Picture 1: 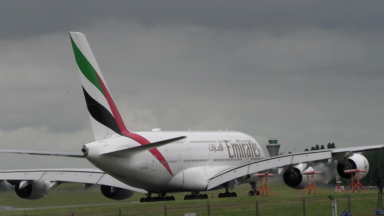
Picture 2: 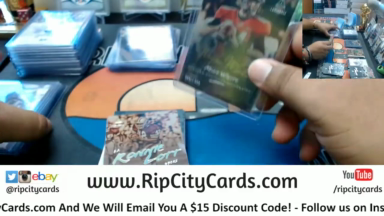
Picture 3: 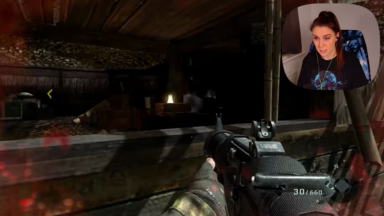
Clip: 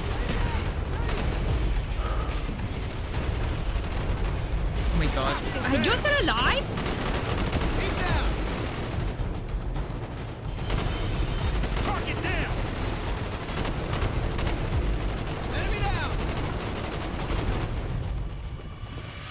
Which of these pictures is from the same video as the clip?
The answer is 3